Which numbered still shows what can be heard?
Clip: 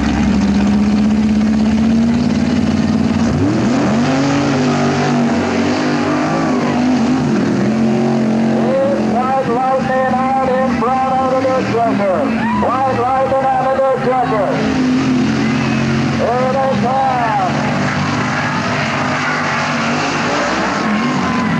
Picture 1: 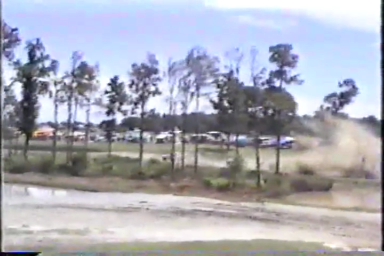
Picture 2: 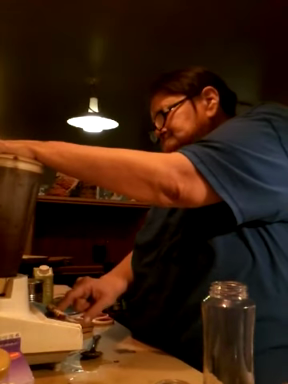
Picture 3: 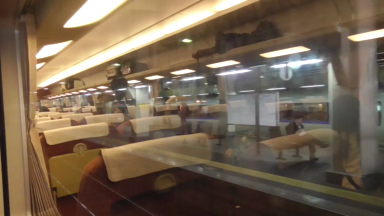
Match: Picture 1